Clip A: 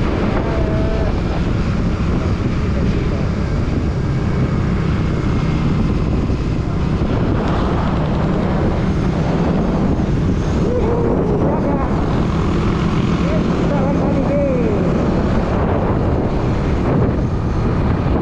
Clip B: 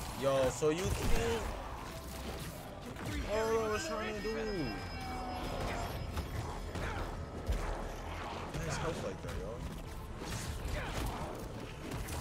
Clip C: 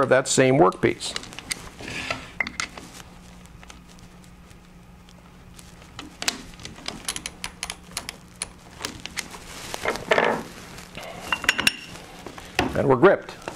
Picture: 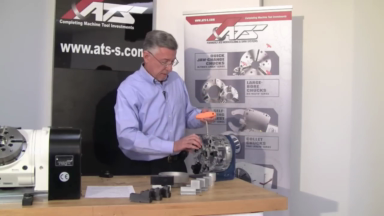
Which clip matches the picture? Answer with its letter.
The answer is C